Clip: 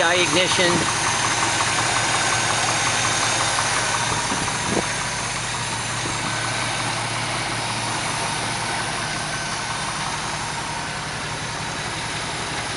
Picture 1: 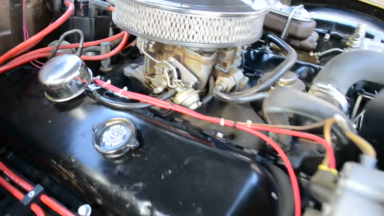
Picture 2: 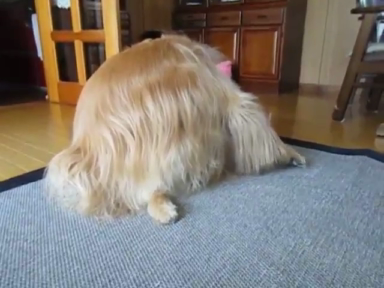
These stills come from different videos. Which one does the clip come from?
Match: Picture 1